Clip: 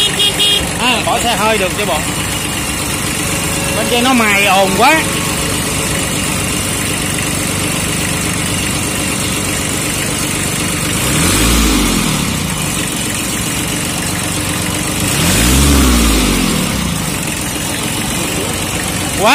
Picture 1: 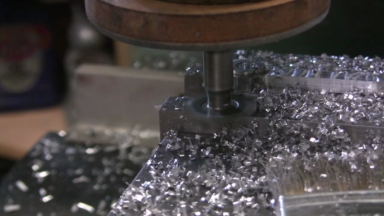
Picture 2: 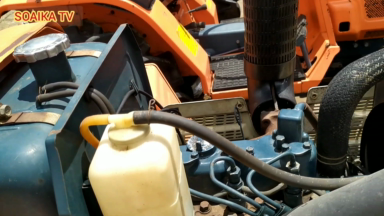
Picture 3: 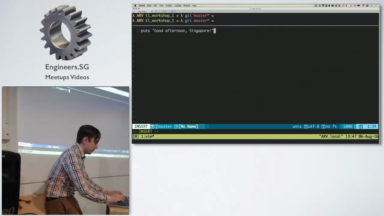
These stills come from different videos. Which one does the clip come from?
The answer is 2